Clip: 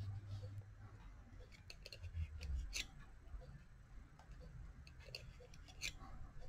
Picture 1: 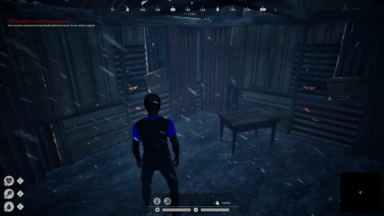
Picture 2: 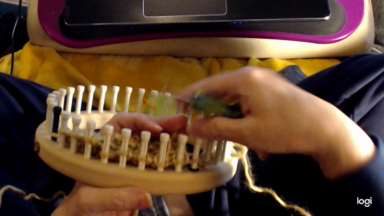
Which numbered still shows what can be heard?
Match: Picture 2